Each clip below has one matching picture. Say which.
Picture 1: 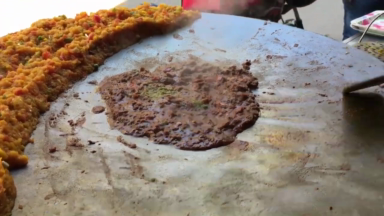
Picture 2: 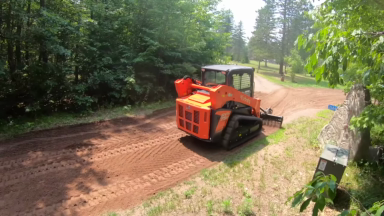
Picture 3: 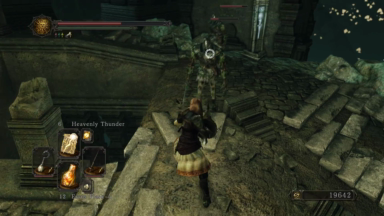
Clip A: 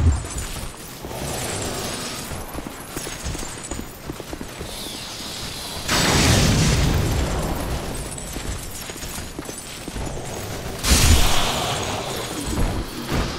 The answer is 3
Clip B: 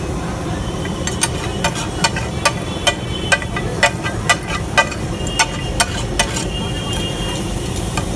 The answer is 1